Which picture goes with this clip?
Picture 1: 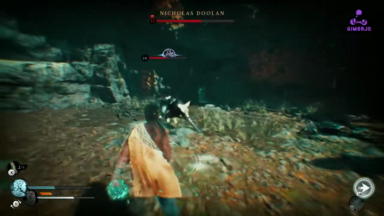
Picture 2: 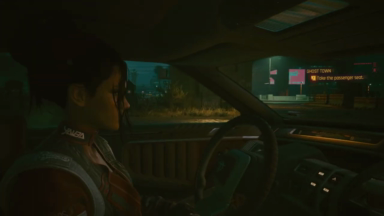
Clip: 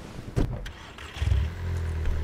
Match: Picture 2